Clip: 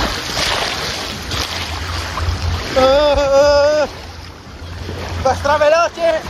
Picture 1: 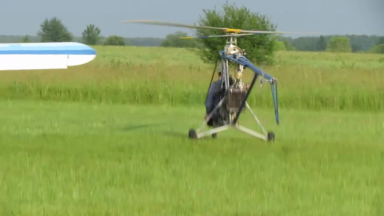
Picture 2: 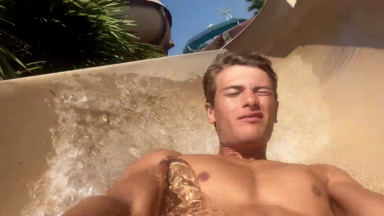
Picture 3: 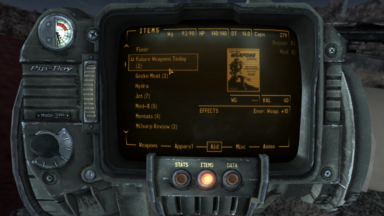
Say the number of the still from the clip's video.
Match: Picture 2